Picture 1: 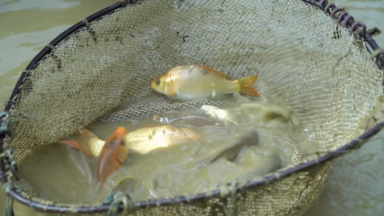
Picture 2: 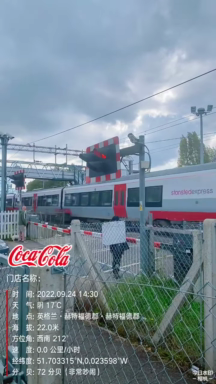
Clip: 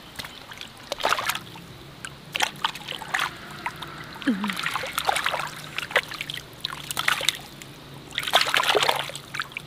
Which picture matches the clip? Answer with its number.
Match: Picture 1